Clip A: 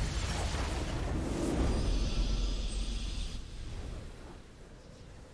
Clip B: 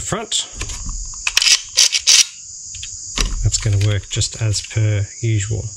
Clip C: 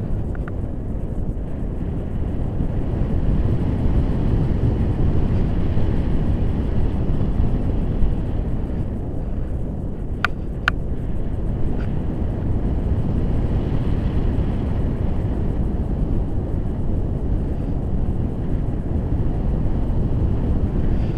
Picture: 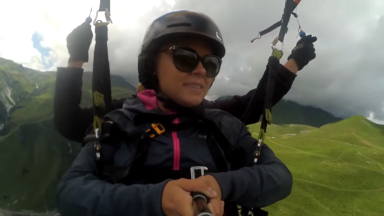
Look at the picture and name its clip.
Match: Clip C